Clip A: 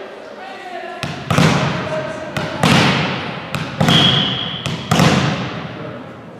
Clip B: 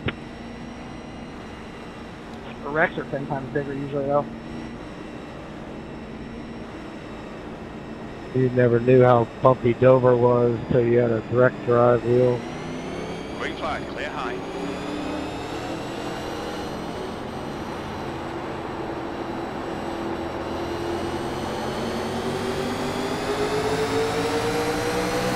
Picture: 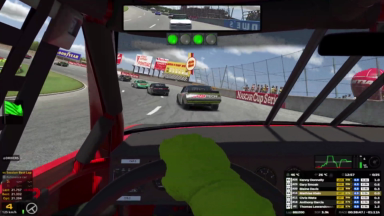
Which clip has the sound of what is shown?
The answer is B